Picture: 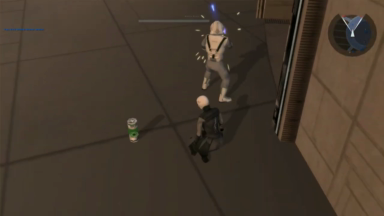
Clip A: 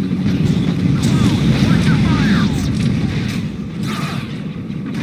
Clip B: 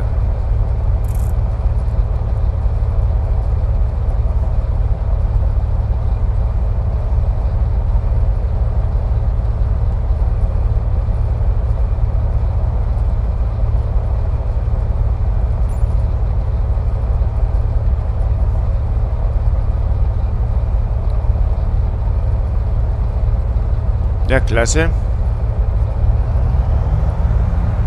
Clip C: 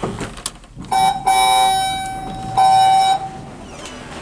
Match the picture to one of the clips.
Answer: A